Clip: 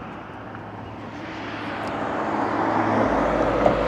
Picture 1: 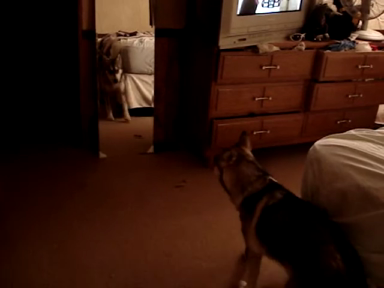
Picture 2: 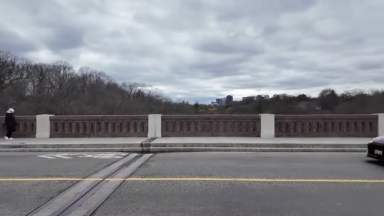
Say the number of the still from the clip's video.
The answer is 2